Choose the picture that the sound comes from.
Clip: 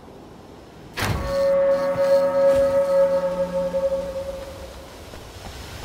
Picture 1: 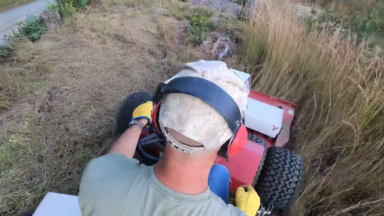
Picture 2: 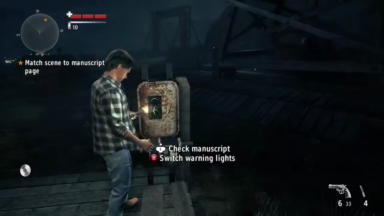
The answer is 2